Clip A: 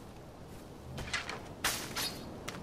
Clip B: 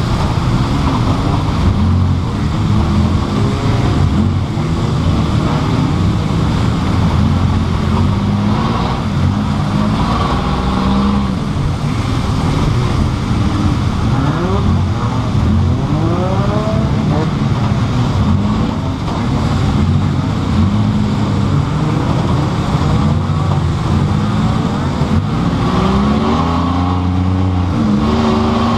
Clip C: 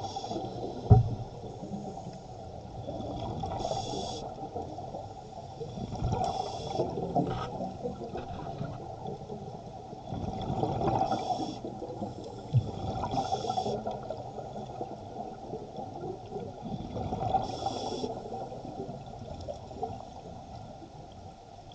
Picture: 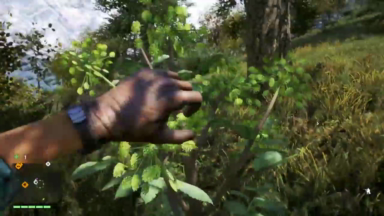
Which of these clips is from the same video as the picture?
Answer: A